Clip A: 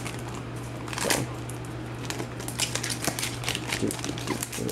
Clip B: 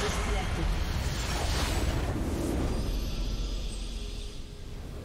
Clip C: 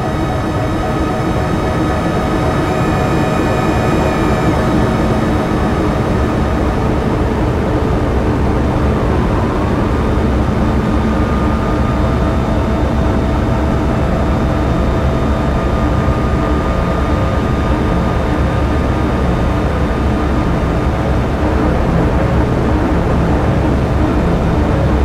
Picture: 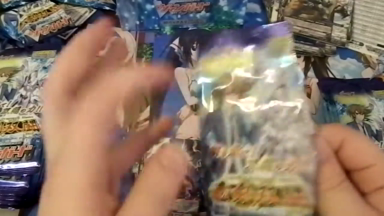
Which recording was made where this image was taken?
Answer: A